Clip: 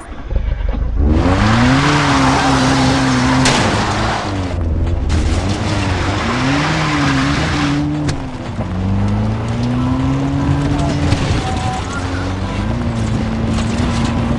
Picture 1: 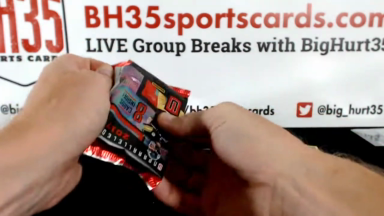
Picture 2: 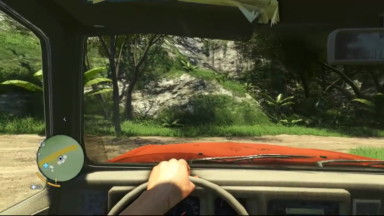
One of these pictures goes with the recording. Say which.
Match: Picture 2